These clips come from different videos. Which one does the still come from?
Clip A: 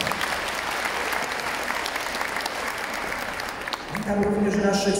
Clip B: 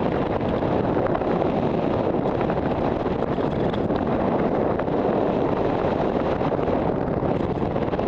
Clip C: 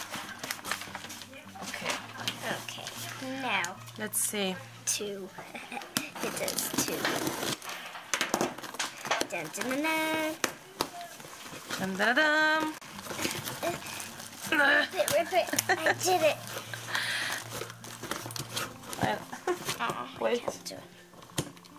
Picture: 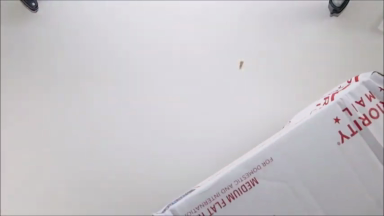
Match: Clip C